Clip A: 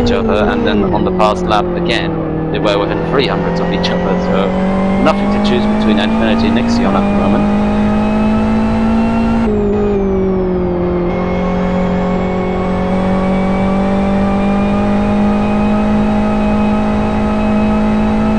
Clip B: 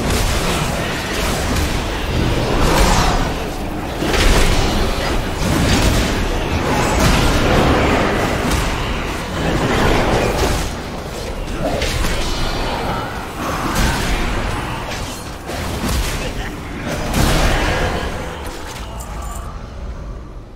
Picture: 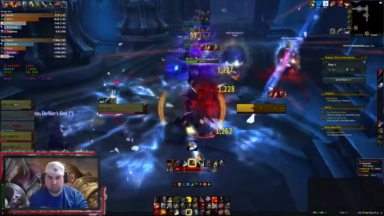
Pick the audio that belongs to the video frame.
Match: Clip B